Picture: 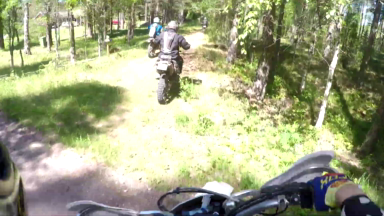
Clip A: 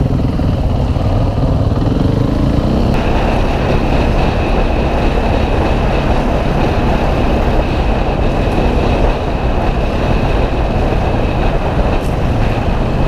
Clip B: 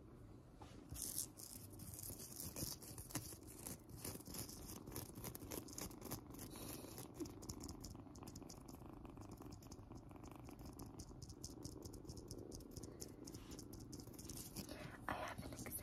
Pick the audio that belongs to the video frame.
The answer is A